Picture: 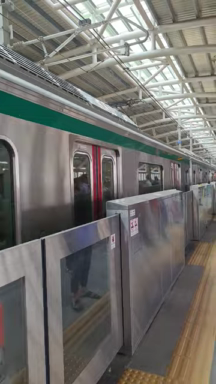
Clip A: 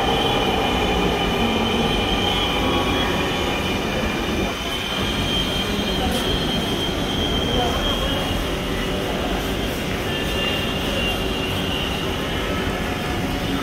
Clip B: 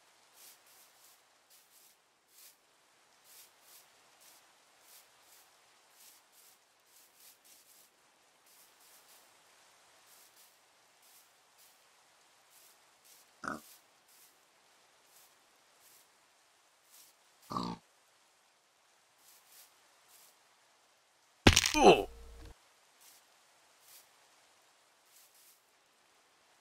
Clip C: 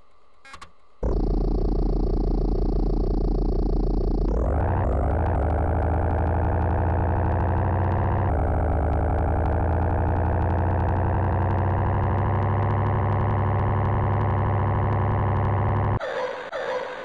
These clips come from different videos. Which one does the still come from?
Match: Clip A